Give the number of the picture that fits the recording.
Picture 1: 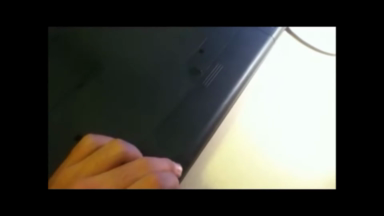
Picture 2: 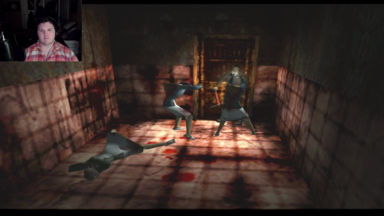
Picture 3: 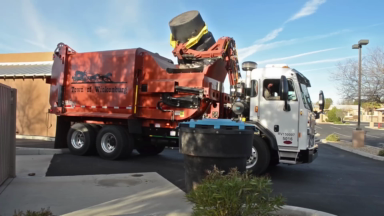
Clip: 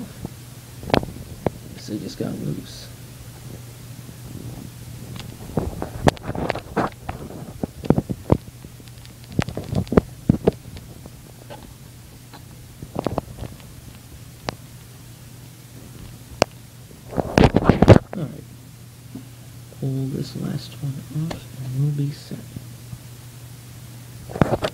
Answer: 1